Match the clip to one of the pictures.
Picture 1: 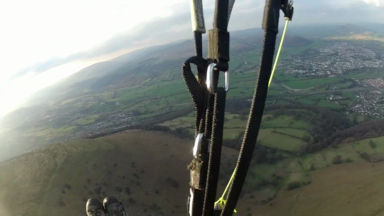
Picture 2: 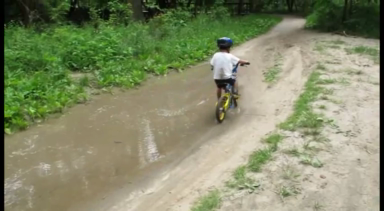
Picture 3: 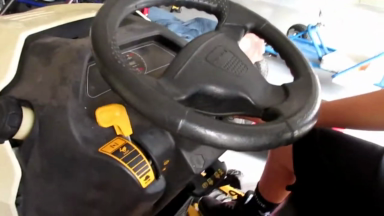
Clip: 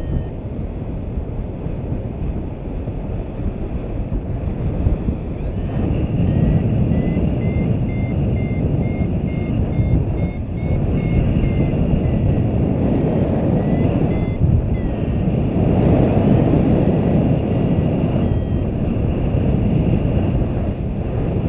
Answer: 1